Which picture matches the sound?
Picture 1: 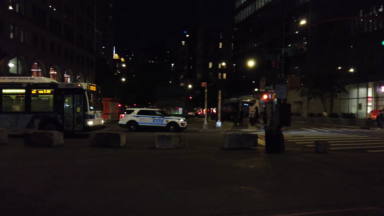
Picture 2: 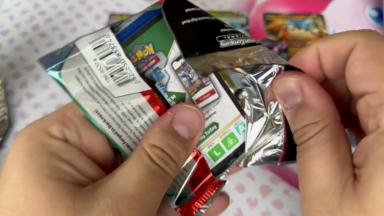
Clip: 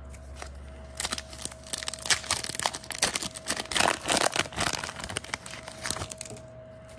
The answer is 2